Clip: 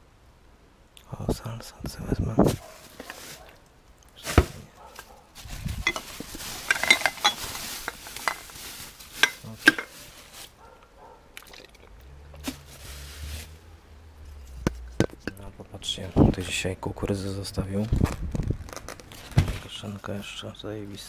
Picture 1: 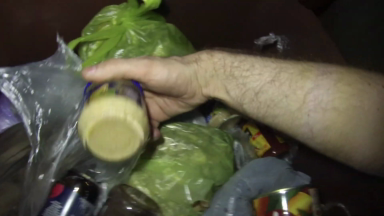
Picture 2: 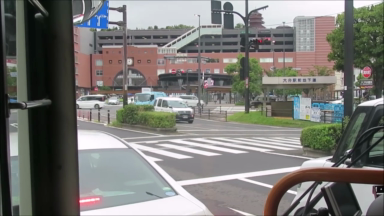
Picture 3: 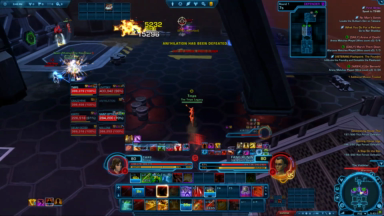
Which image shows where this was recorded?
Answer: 1